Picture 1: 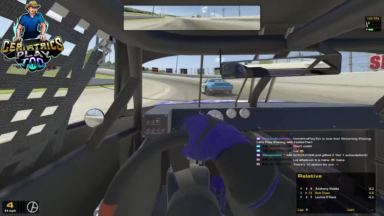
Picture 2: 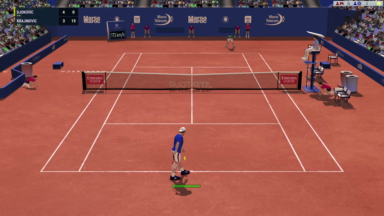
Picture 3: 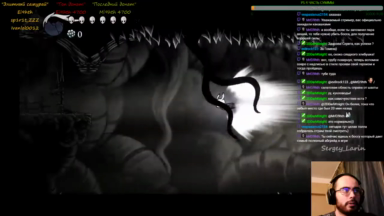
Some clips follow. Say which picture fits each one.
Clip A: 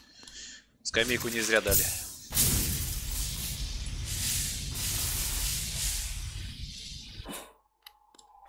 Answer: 3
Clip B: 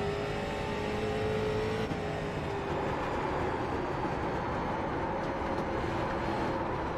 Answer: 1